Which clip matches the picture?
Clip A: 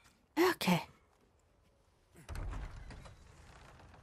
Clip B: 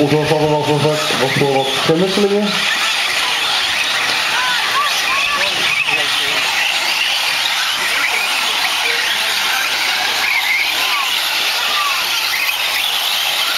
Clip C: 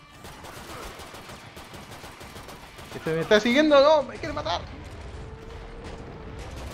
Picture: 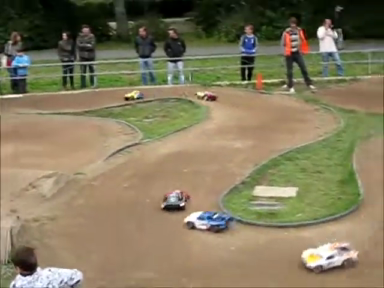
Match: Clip B